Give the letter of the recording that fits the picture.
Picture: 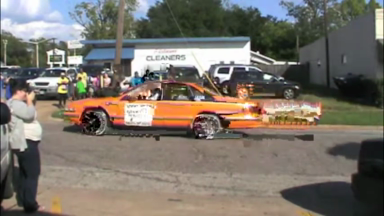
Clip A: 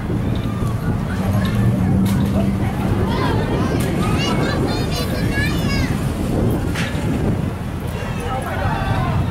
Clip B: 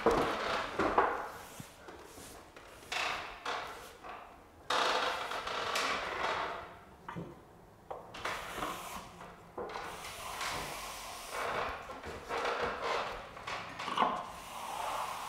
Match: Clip A